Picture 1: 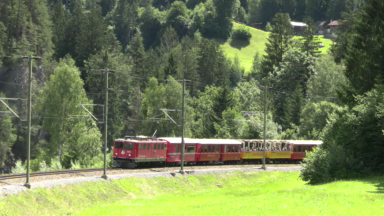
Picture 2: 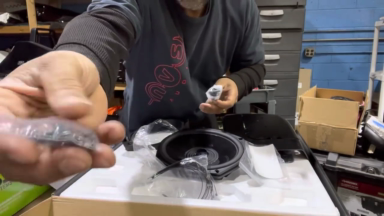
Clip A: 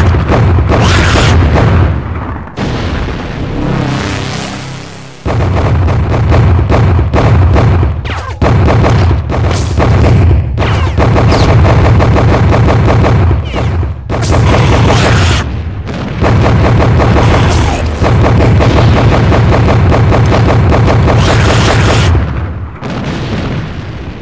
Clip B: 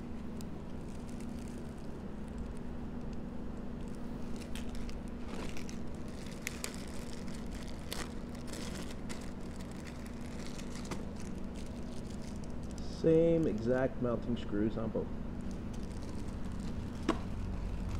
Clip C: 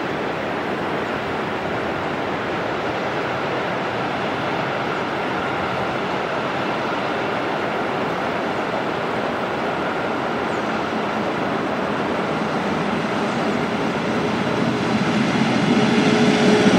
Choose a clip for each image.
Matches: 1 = C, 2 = B